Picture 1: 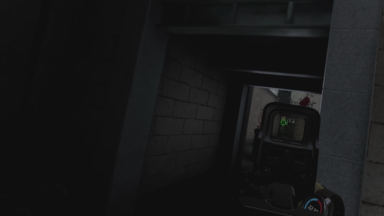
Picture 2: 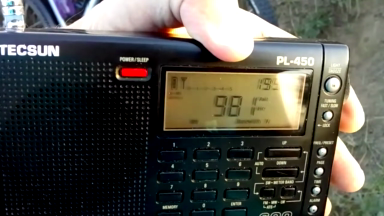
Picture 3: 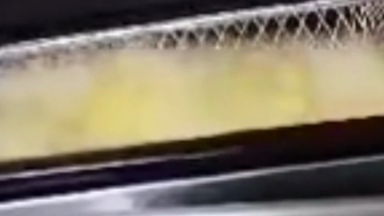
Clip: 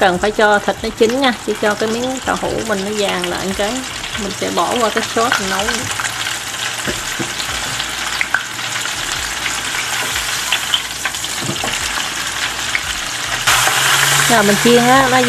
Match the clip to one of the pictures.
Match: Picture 3